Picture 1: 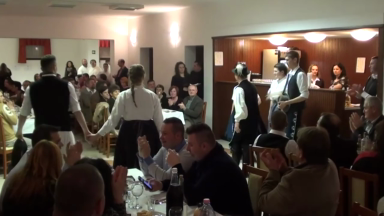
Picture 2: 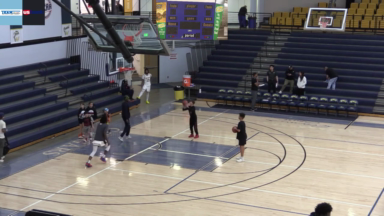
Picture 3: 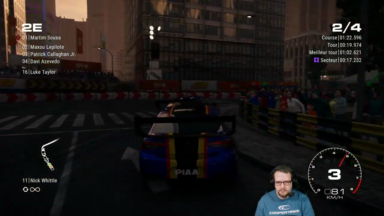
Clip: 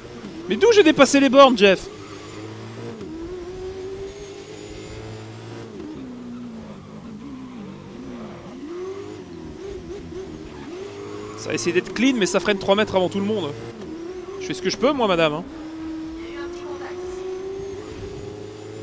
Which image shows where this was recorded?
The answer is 3